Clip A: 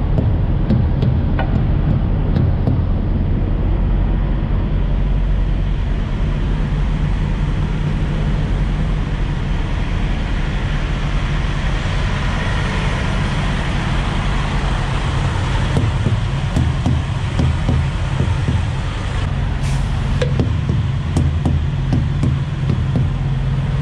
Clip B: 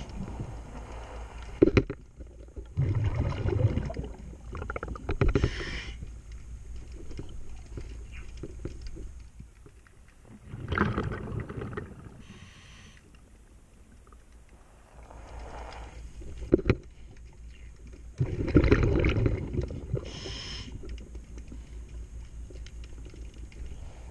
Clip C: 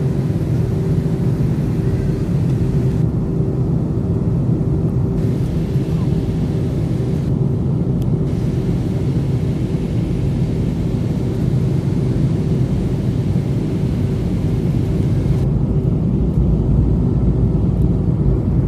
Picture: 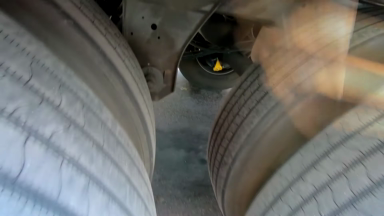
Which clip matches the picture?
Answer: A